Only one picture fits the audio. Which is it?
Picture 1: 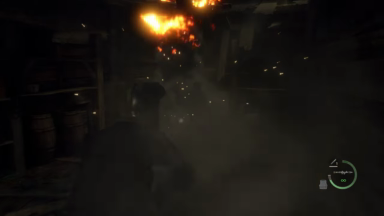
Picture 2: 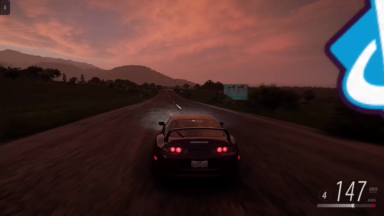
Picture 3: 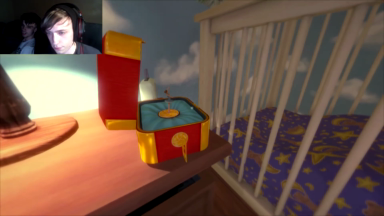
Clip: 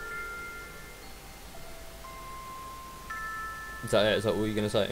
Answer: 3